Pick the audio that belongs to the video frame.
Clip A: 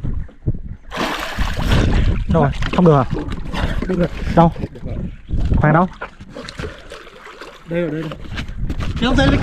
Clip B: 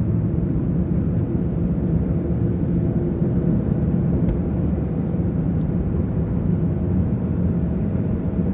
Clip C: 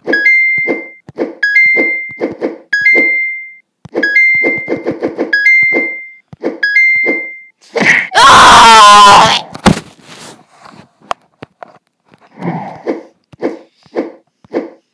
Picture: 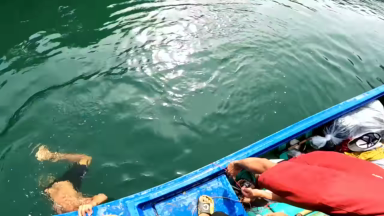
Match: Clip A